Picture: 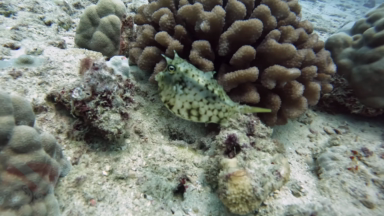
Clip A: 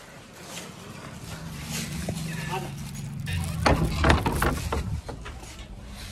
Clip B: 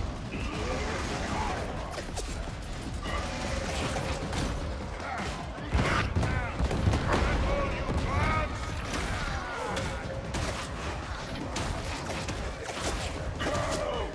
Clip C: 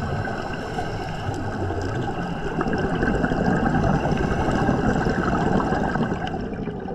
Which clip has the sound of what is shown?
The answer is C